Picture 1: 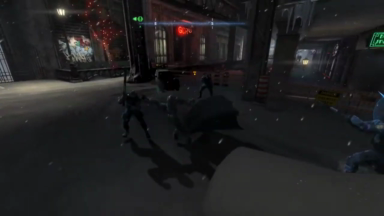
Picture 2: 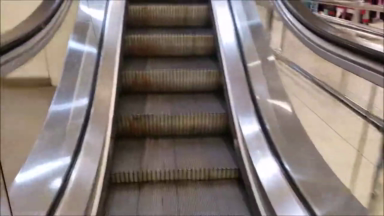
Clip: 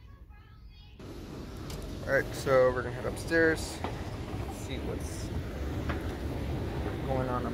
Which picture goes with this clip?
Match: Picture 2